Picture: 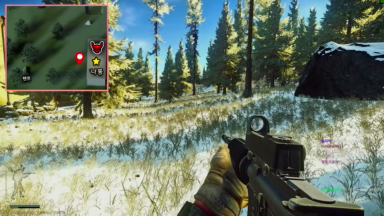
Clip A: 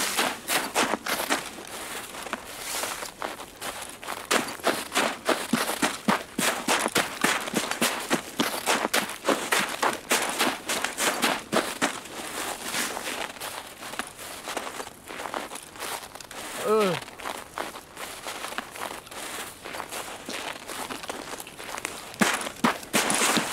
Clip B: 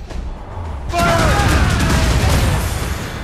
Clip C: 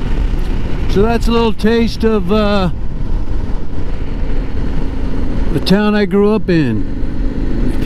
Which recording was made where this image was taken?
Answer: A